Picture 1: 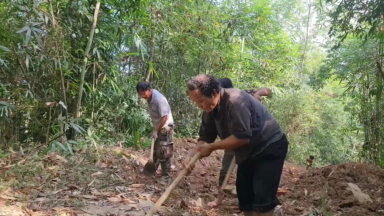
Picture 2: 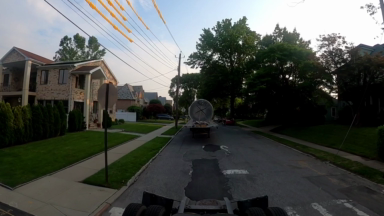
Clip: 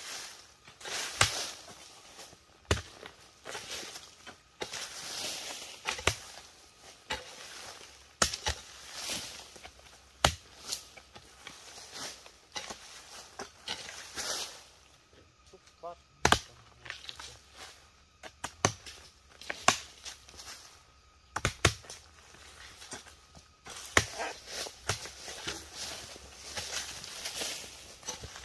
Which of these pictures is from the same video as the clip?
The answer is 1